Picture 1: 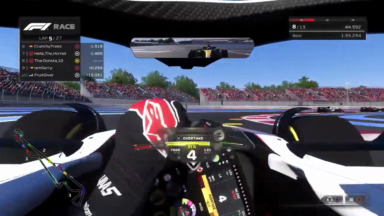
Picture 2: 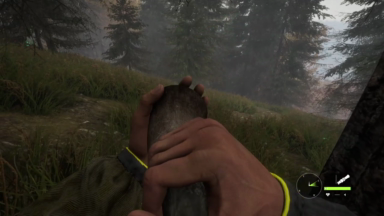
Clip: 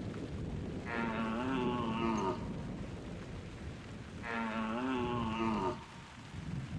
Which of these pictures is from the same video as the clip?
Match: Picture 2